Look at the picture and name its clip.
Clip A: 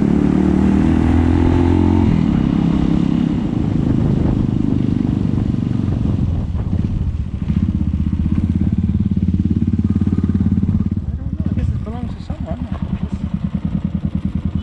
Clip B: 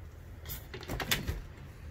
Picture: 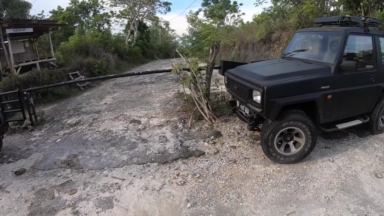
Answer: A